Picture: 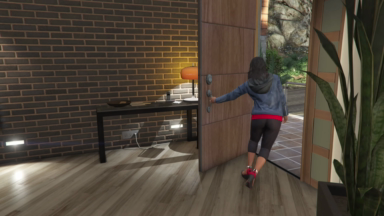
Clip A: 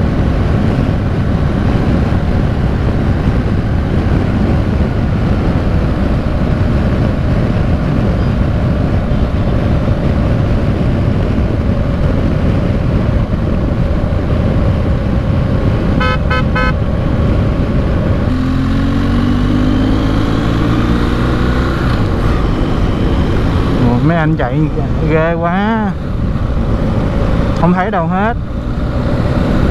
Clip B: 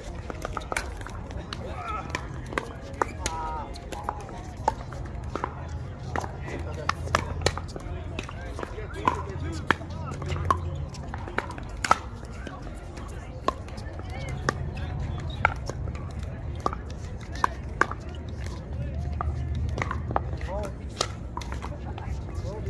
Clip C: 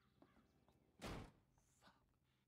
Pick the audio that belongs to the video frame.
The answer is C